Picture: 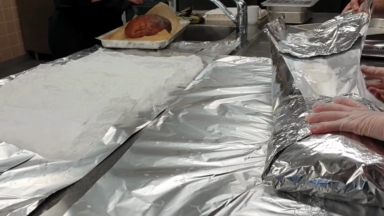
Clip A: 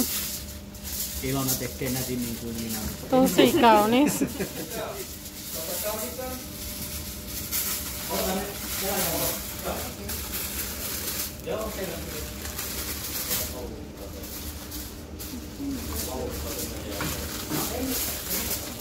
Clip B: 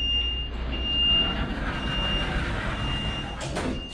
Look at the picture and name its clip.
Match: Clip A